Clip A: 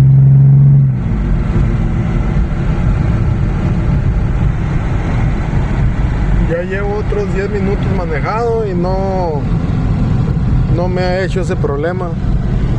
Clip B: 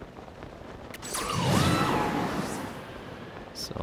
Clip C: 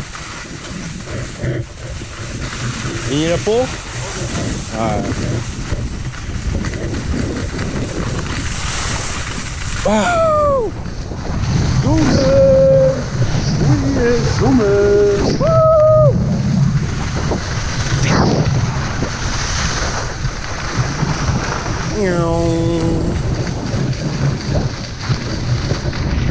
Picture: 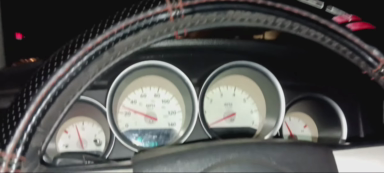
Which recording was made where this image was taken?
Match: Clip A